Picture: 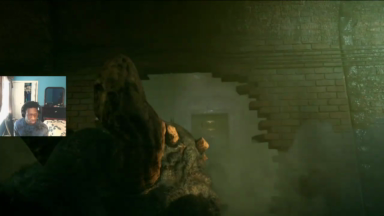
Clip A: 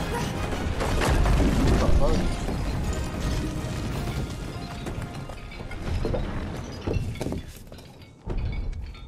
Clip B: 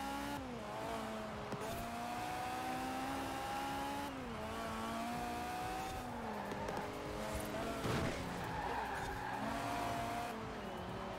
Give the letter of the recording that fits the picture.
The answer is A